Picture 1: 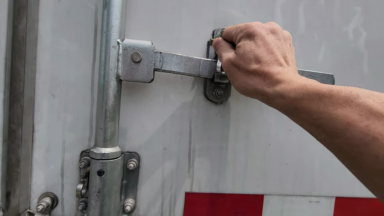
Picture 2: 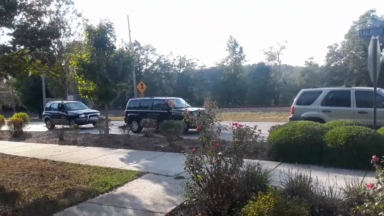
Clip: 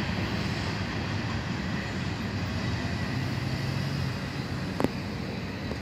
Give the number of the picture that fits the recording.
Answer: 2